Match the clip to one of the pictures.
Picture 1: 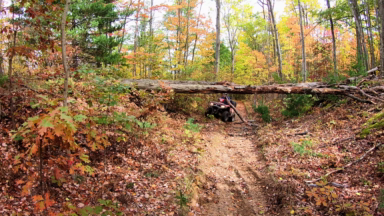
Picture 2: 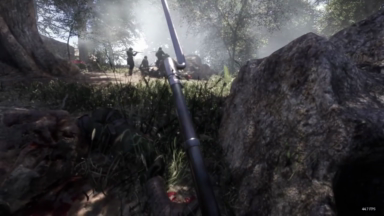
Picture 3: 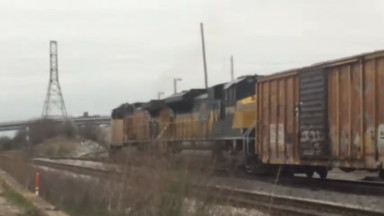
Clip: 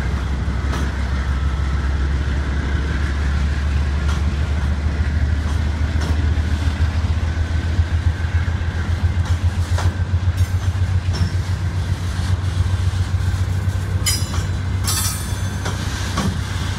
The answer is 3